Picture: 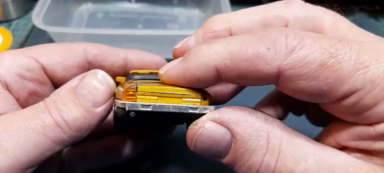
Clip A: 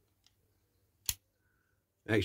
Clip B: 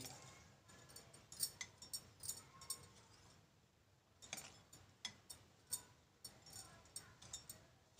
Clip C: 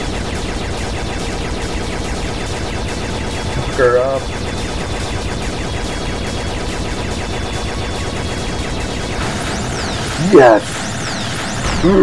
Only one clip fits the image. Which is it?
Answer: A